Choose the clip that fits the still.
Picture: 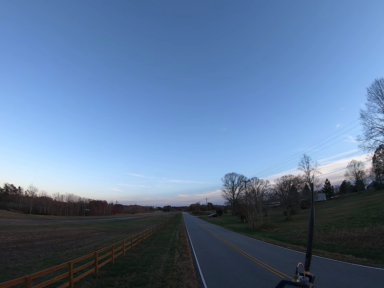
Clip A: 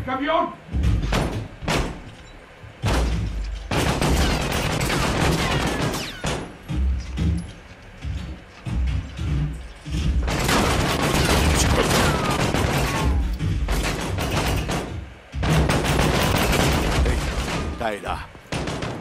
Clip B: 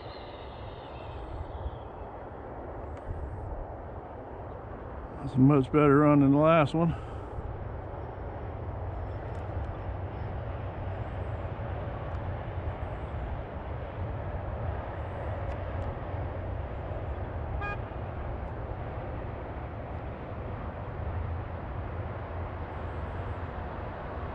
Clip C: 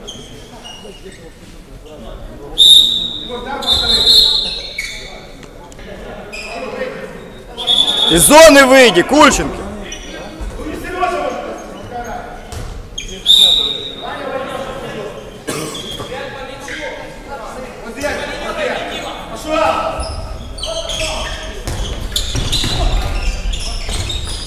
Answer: B